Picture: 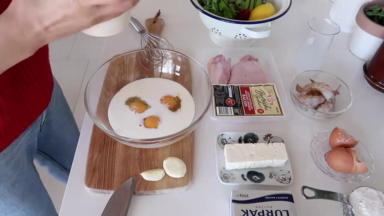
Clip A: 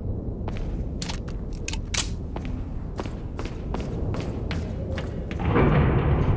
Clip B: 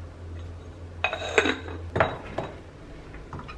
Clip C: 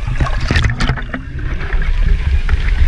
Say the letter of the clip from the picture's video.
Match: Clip B